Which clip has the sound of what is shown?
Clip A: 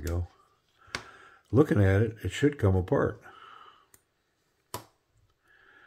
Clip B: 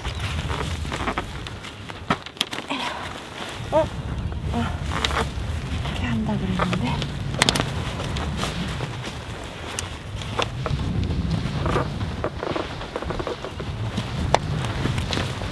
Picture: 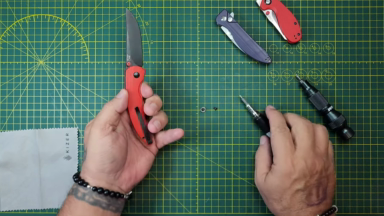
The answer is A